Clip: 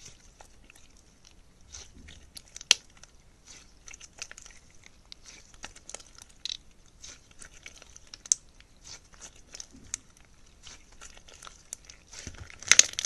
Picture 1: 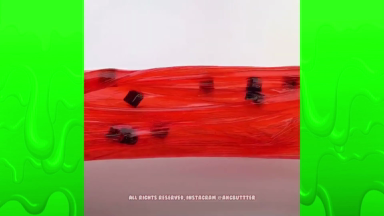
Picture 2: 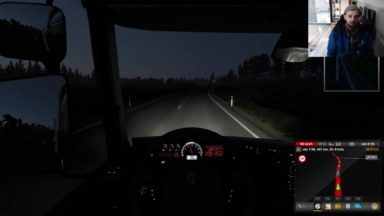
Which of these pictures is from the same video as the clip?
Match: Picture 1